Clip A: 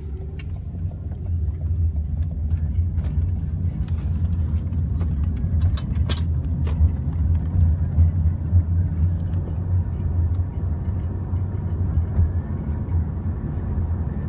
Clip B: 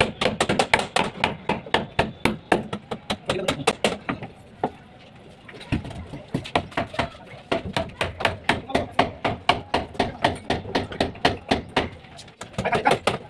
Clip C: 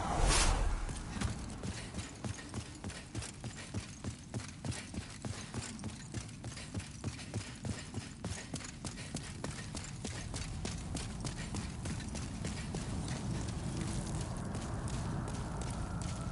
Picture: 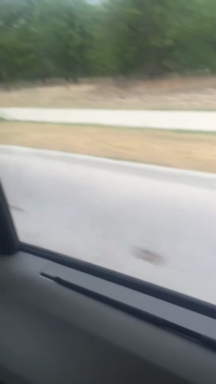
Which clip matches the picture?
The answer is A